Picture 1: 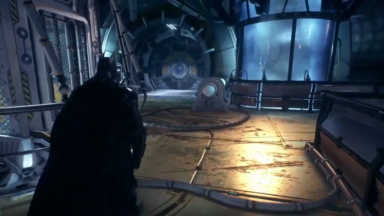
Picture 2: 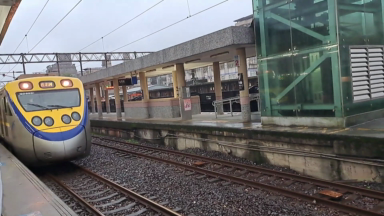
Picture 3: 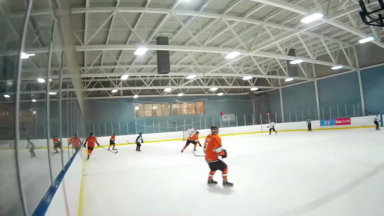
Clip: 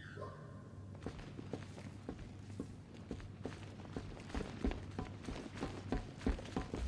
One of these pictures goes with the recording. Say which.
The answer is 1